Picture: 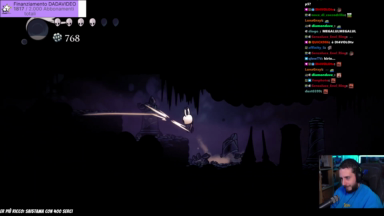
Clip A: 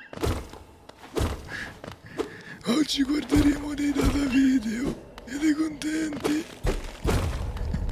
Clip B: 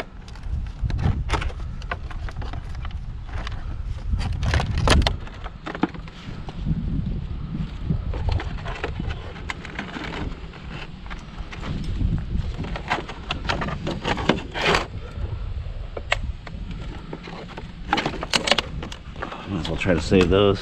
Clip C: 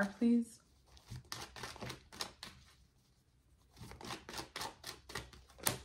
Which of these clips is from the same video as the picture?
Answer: A